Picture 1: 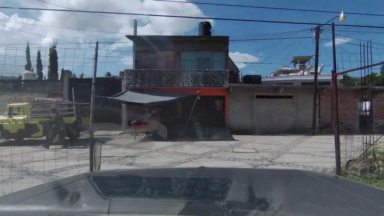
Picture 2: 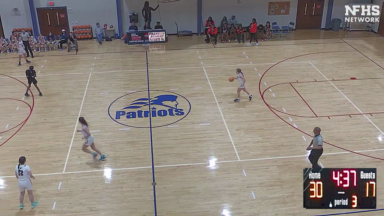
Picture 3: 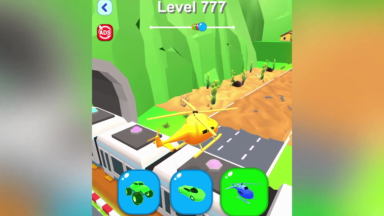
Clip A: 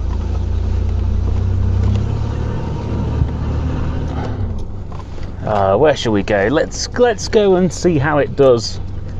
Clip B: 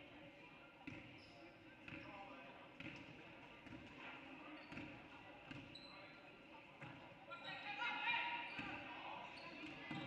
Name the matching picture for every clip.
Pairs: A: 1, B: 2